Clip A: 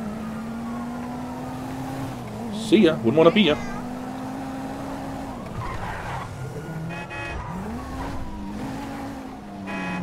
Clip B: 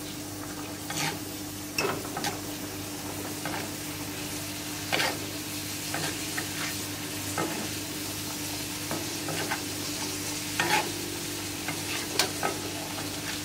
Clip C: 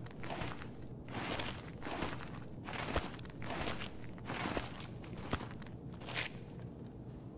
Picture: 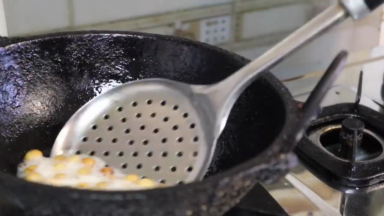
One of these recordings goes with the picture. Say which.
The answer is B